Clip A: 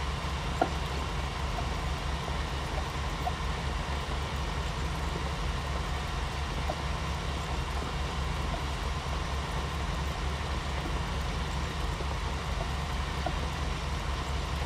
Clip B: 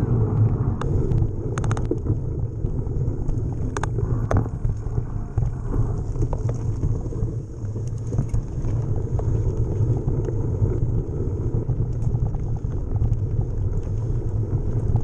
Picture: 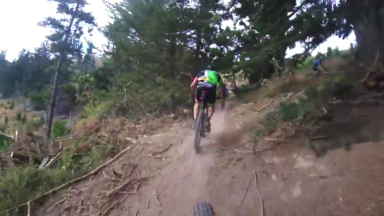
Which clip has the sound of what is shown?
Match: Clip B